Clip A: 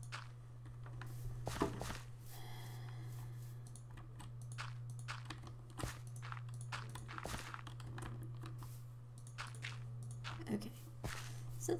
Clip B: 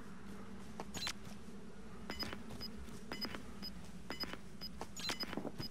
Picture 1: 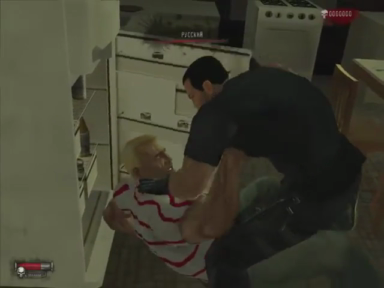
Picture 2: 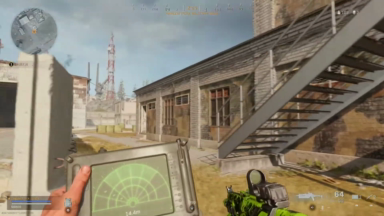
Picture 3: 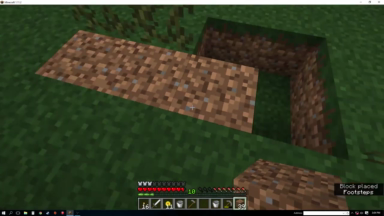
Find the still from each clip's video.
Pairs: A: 3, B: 2